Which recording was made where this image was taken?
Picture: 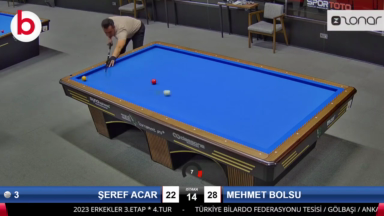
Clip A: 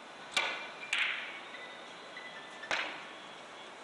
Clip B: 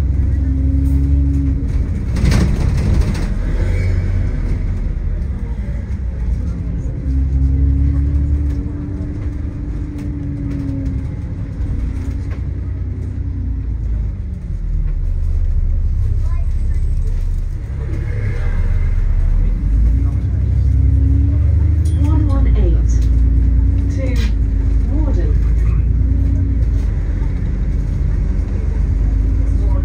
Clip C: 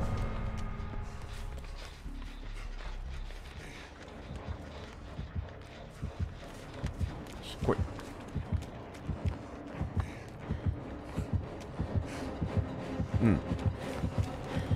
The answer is A